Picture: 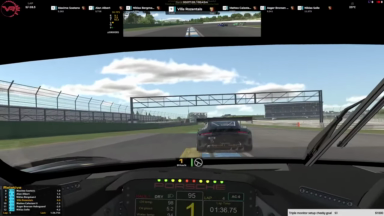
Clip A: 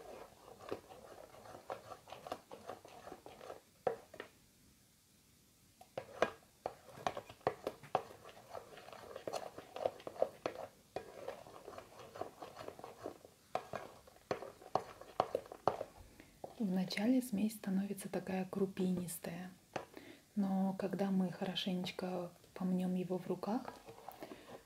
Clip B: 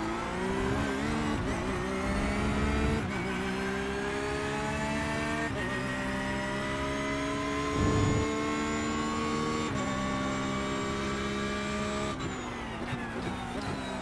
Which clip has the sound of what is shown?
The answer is B